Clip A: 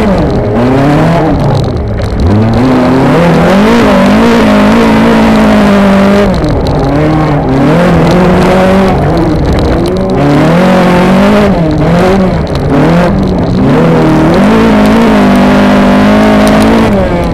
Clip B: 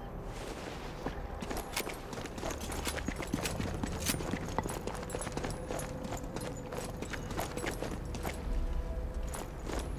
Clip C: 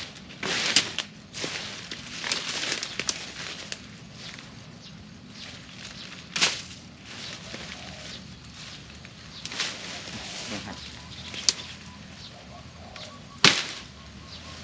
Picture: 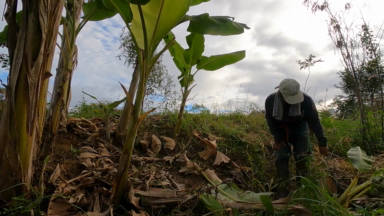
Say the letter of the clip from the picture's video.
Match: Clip C